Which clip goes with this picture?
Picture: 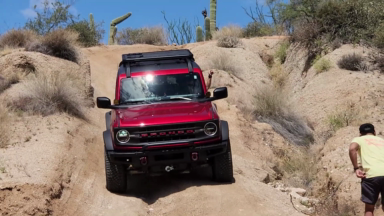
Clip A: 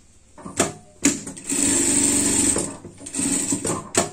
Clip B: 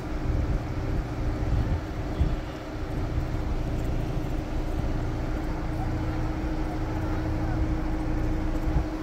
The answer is B